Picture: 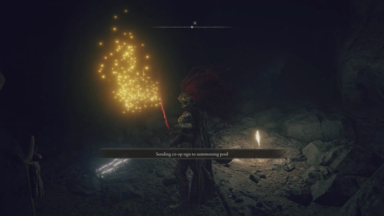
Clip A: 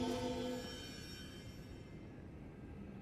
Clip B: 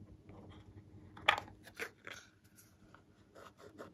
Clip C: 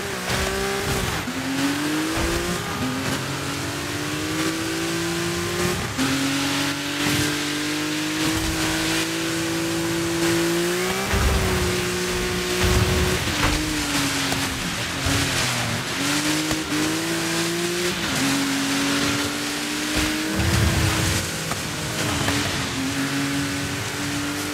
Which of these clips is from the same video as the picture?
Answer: A